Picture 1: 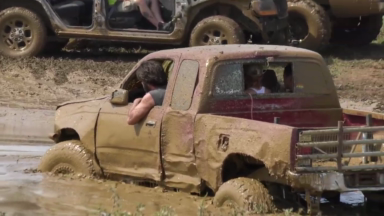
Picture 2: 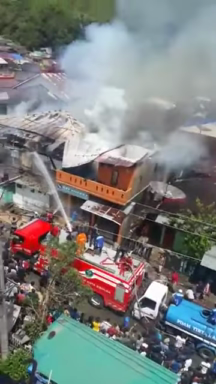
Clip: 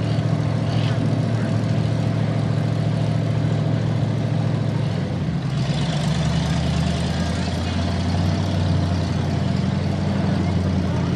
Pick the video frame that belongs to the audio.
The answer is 1